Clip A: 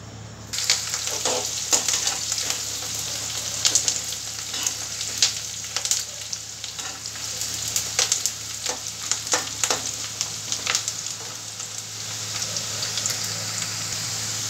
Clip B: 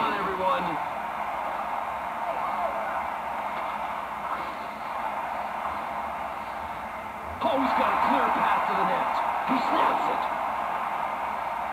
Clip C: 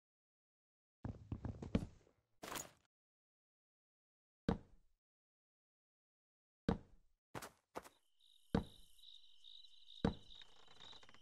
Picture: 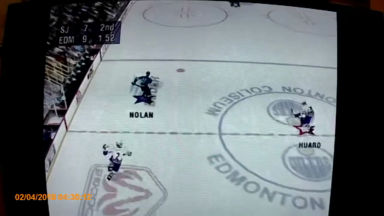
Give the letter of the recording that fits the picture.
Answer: B